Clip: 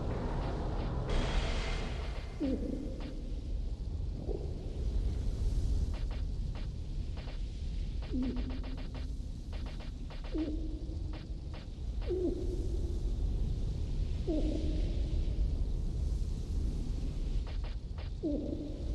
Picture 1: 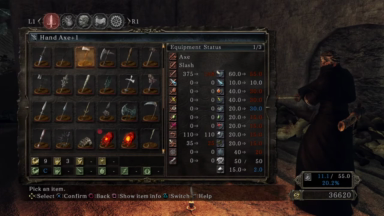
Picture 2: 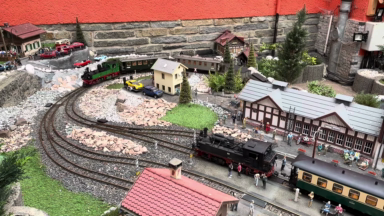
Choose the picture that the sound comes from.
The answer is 1